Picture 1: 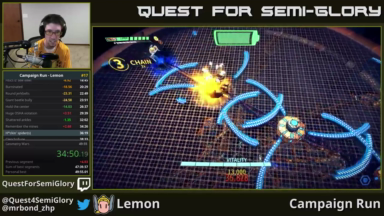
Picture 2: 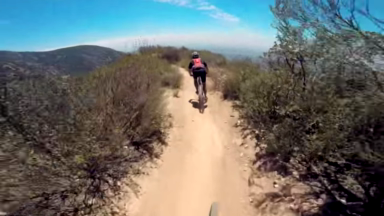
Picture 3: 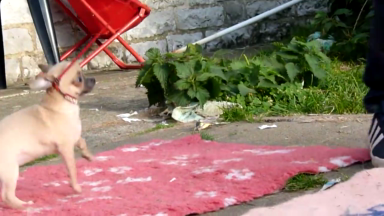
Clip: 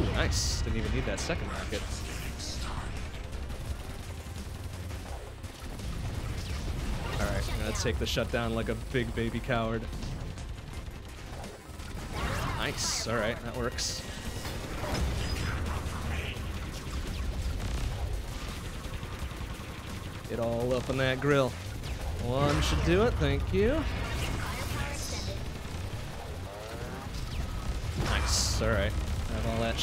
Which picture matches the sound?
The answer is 1